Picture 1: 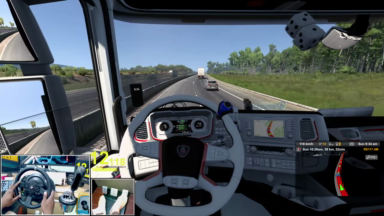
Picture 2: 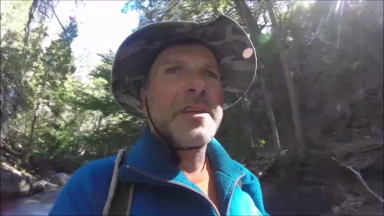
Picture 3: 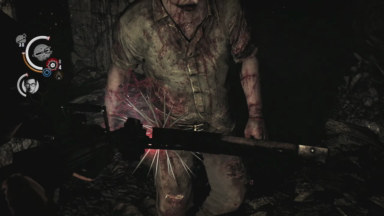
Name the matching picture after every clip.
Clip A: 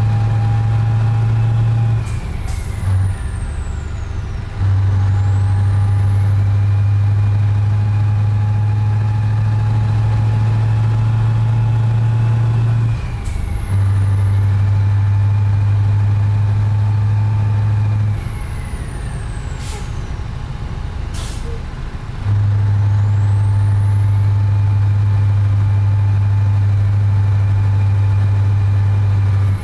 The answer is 1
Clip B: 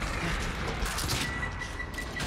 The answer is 3